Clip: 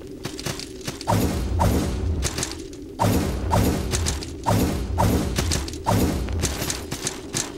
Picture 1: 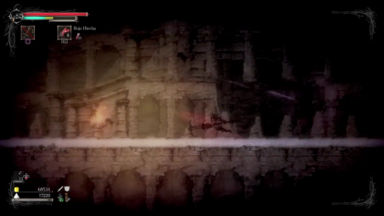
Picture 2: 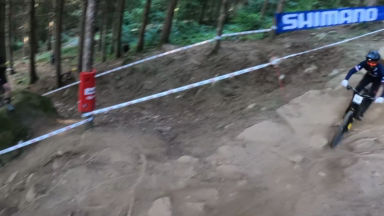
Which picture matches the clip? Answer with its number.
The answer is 1